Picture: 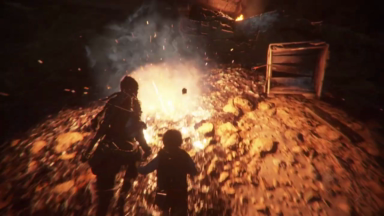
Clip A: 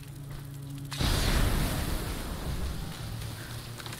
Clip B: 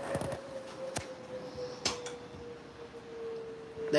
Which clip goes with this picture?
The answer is A